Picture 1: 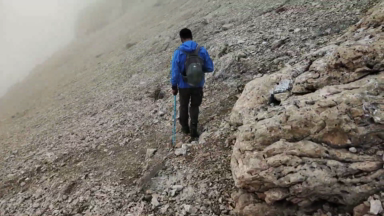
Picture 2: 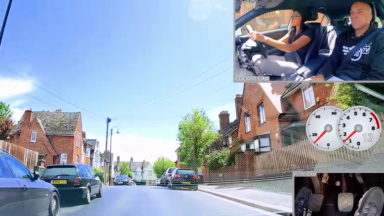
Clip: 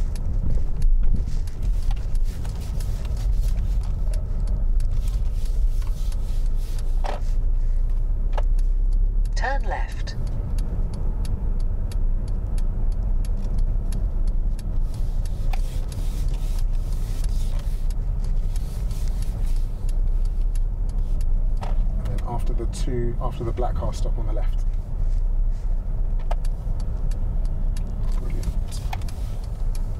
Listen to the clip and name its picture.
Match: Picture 2